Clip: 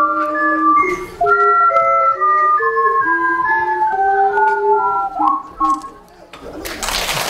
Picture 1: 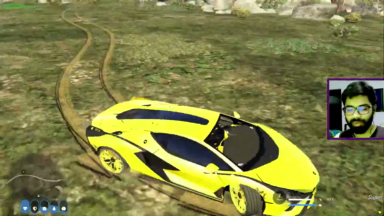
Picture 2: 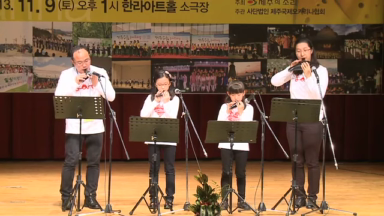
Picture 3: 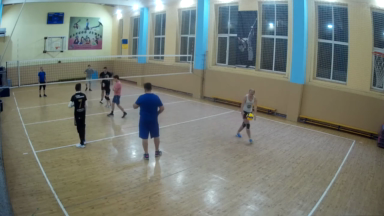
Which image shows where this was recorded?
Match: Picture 2